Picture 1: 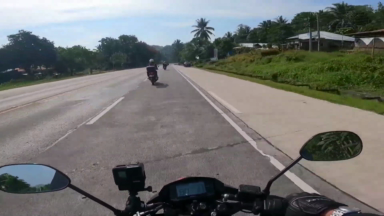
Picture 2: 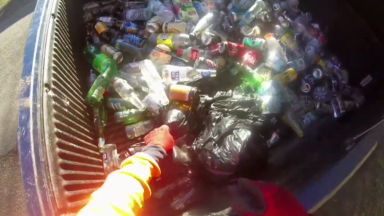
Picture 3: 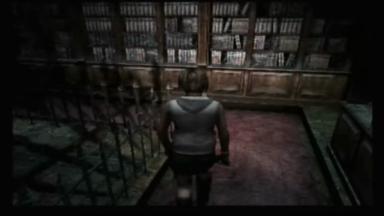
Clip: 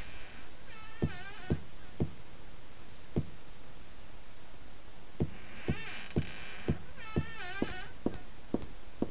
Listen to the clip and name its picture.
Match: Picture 3